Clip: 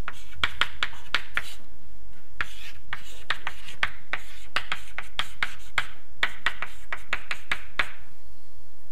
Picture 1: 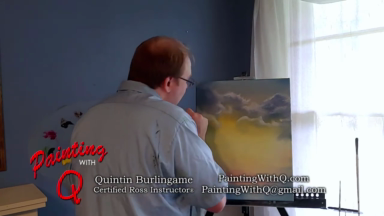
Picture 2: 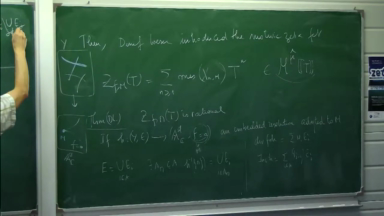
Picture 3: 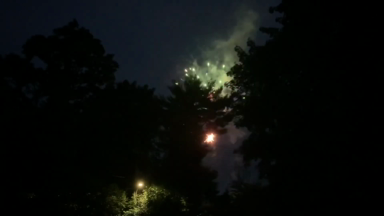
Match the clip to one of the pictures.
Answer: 2